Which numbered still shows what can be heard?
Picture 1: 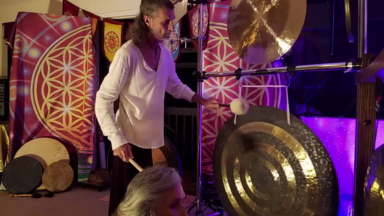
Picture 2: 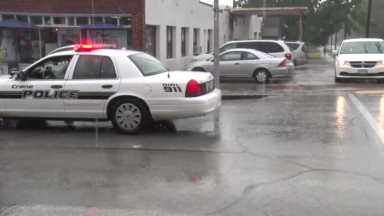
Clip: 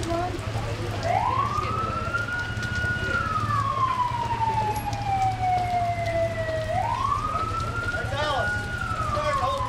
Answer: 2